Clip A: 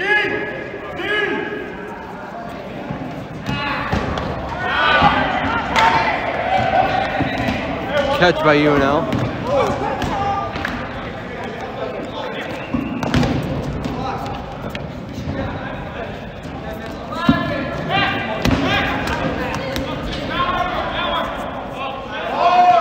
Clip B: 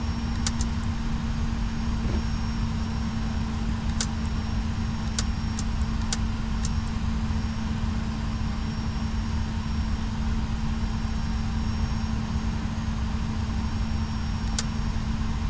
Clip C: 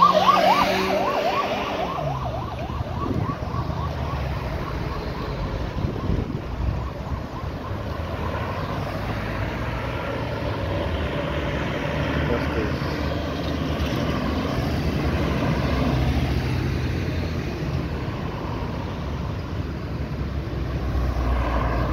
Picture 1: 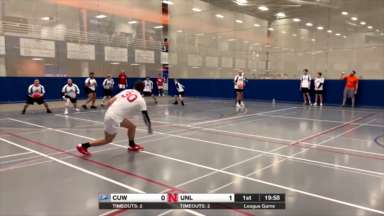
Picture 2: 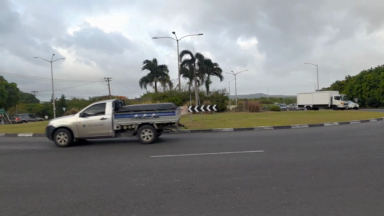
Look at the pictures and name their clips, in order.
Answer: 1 A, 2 C